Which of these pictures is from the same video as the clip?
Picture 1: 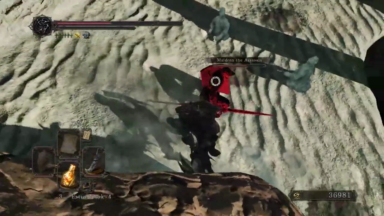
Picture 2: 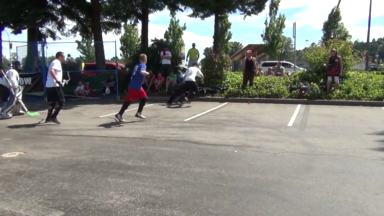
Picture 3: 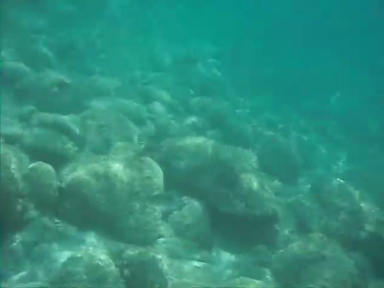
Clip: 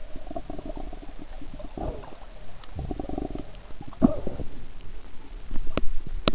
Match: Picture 3